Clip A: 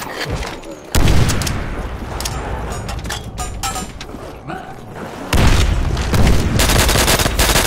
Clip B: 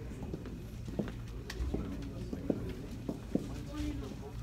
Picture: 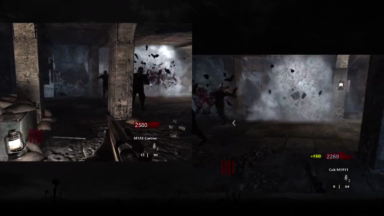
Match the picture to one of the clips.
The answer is A